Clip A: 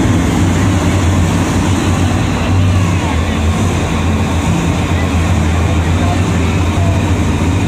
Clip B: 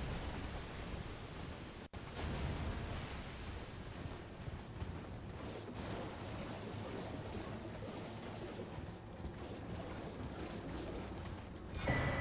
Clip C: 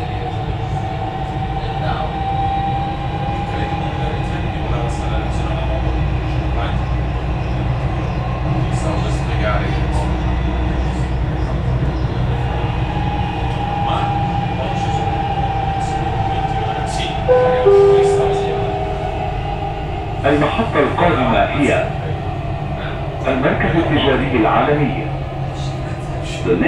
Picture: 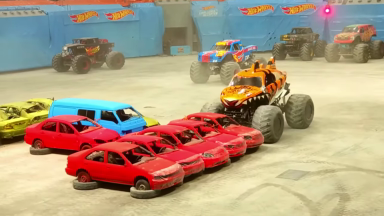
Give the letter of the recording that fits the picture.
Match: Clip A